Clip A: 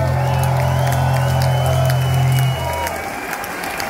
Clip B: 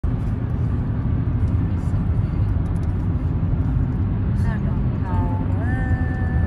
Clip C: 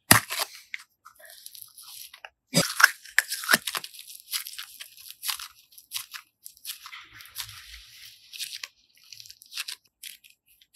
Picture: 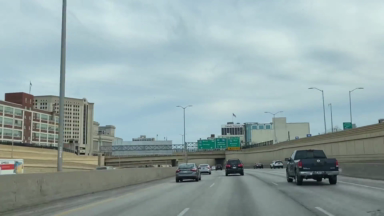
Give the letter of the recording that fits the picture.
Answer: B